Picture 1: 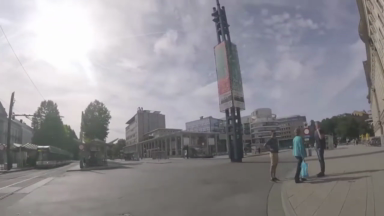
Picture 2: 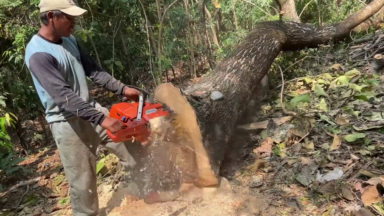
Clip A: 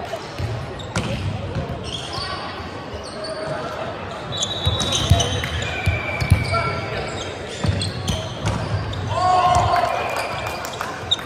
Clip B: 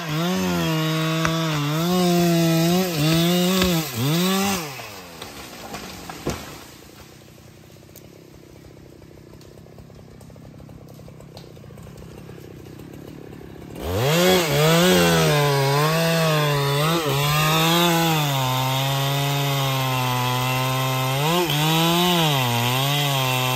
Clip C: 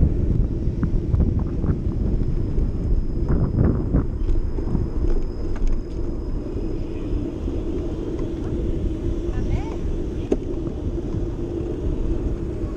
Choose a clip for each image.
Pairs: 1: C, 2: B